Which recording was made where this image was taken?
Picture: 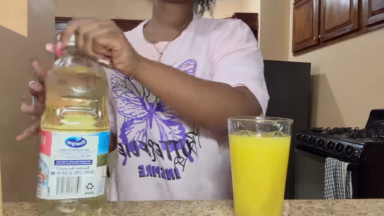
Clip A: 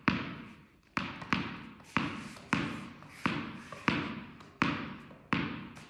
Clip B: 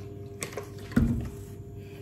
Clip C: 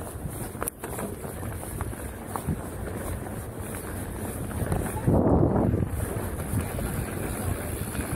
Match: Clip B